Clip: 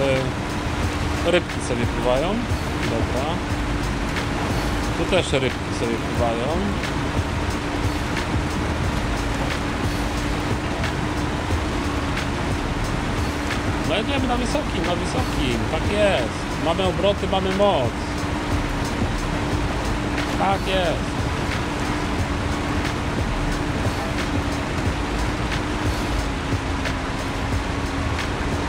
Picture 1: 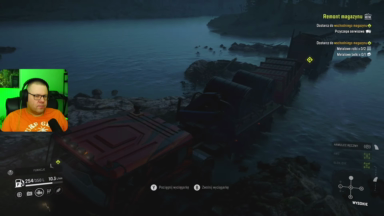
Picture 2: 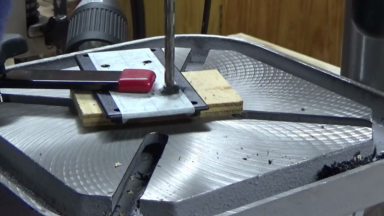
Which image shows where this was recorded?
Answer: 1